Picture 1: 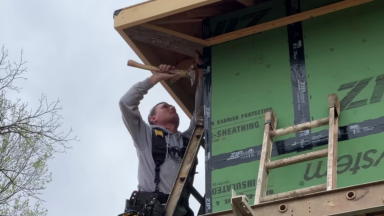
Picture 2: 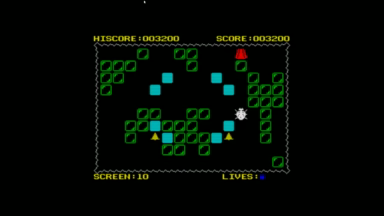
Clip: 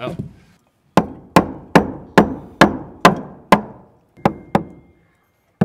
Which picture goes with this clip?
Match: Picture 1